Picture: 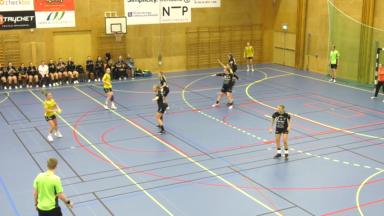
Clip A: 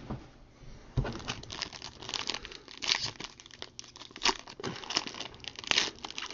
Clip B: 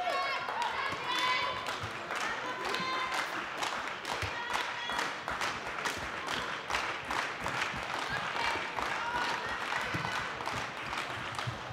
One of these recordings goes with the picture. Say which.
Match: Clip B